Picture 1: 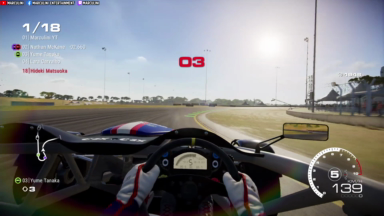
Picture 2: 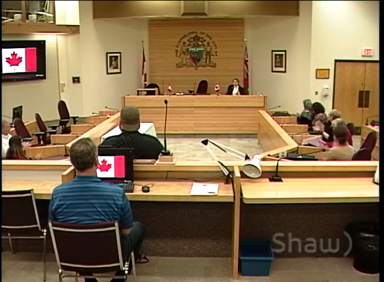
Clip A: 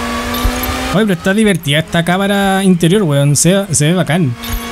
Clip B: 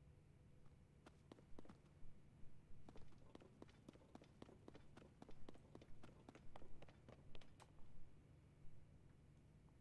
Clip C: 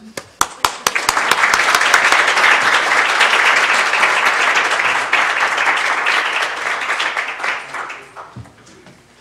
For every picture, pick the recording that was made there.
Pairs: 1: A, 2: C